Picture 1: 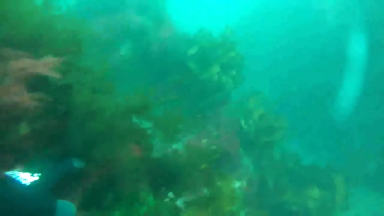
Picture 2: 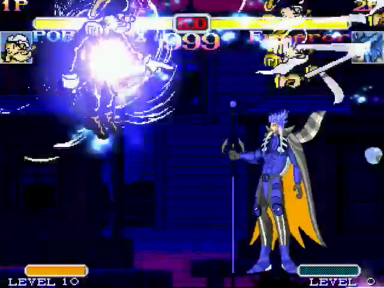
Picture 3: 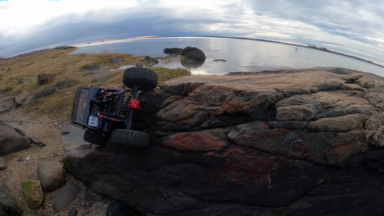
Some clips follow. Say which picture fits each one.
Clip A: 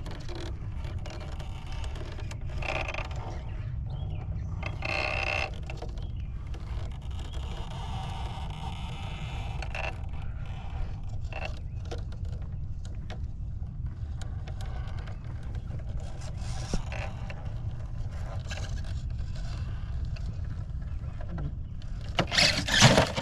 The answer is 3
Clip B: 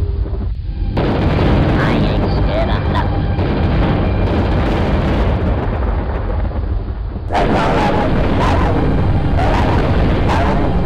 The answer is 2